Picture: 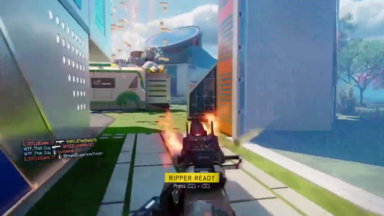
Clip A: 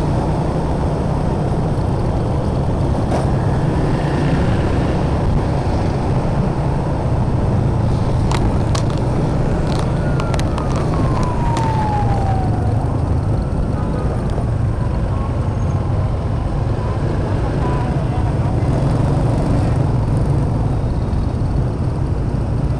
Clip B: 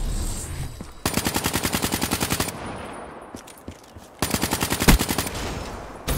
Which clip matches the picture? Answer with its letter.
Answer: B